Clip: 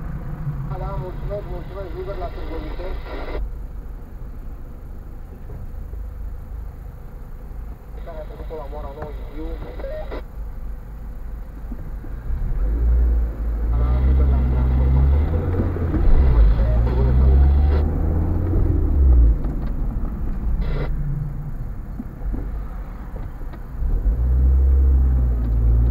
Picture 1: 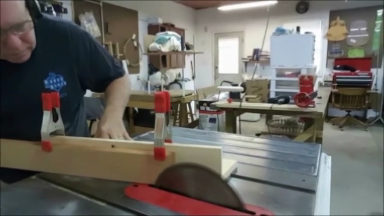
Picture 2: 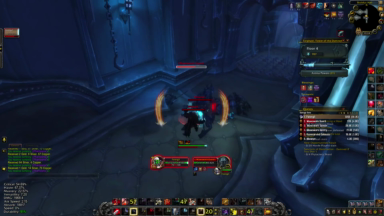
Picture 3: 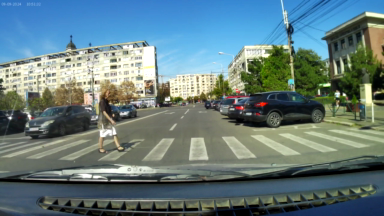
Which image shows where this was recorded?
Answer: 3